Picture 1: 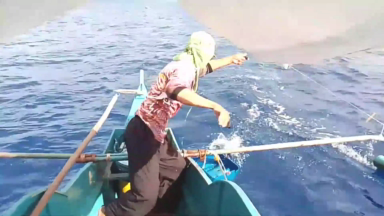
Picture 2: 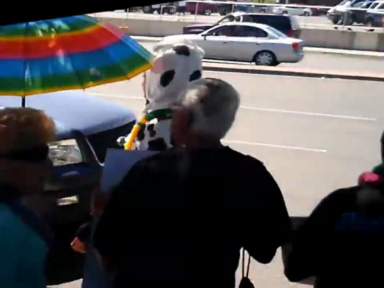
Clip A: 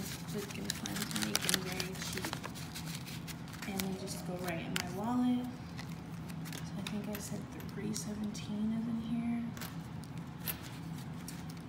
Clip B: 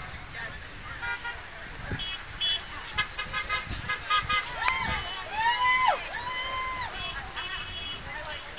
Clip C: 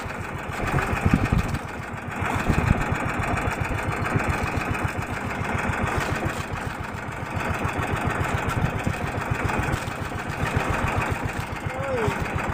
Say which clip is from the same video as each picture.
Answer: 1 C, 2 B